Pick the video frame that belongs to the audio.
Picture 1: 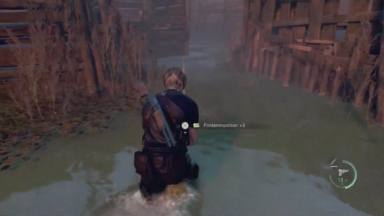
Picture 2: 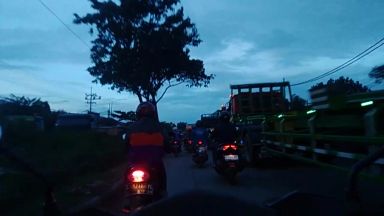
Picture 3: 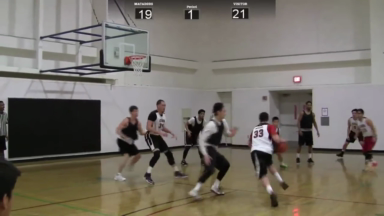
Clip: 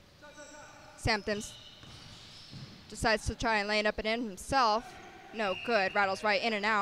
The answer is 3